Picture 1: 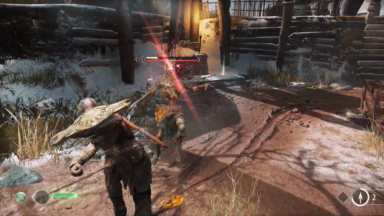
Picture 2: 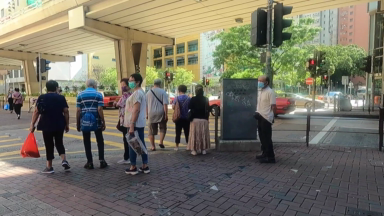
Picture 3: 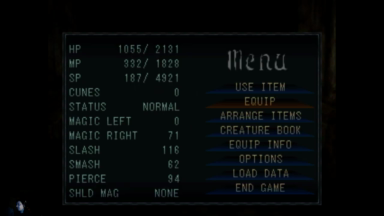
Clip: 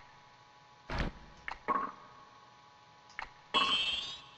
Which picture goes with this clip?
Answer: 3